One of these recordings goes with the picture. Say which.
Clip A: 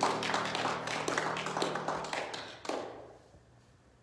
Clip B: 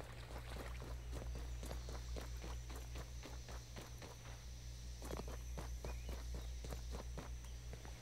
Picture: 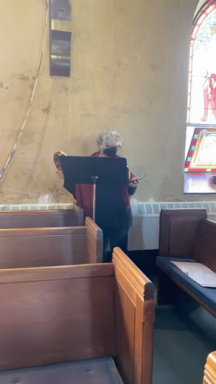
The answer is A